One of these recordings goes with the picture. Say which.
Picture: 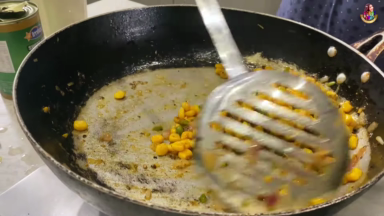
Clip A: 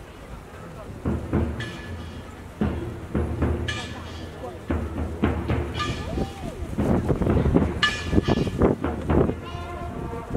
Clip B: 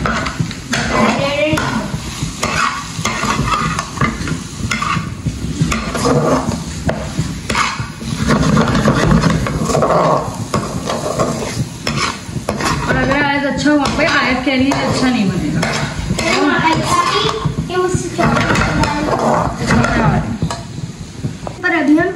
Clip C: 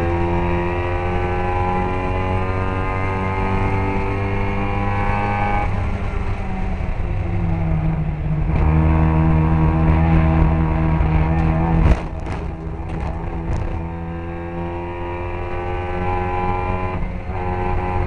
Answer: B